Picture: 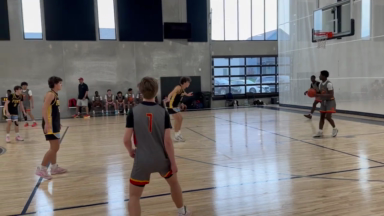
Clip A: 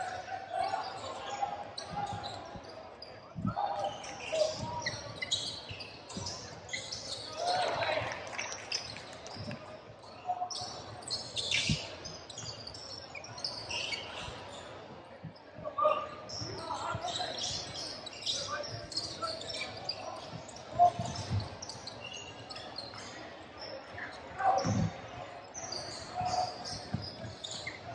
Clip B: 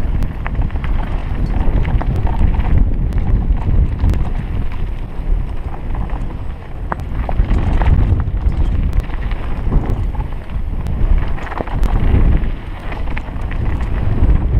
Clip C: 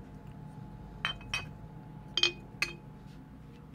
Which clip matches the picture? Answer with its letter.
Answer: A